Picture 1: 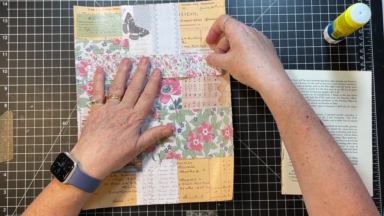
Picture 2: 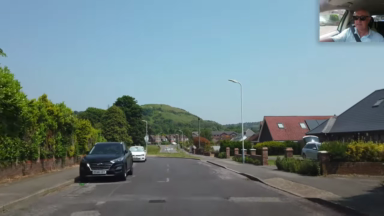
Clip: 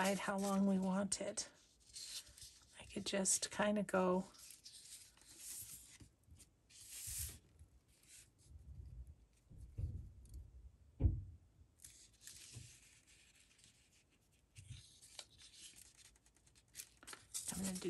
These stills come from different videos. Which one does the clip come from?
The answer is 1